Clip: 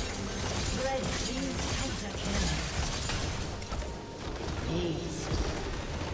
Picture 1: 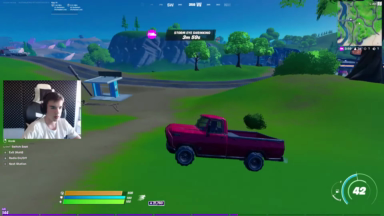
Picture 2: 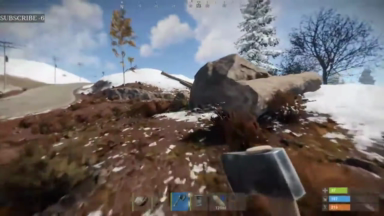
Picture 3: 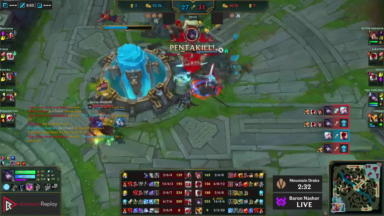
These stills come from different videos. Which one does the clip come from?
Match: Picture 3